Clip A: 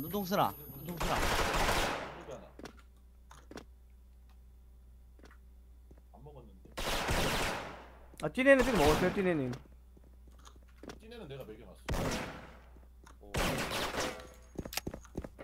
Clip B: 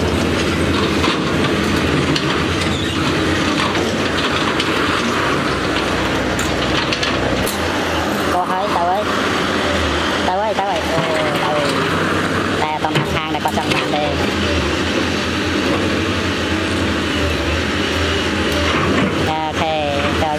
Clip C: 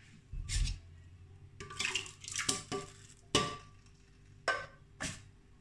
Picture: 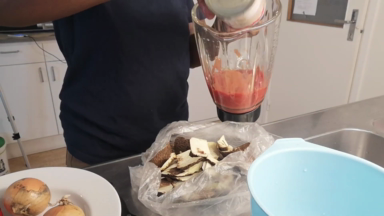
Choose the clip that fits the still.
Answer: C